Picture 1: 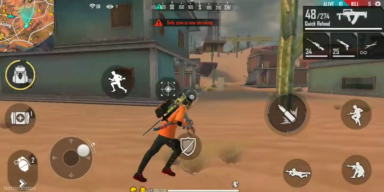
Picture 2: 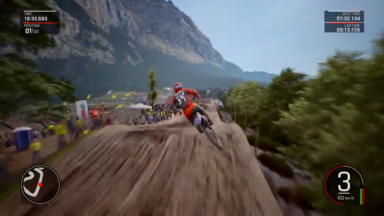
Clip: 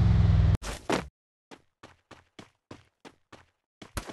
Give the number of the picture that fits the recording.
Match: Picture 1